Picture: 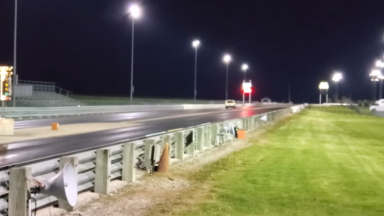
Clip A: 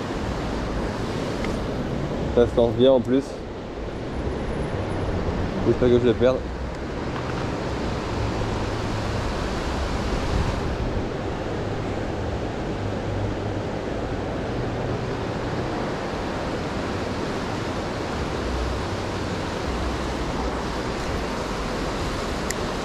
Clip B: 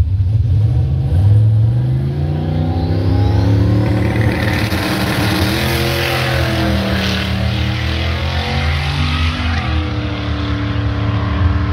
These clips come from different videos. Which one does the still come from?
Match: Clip B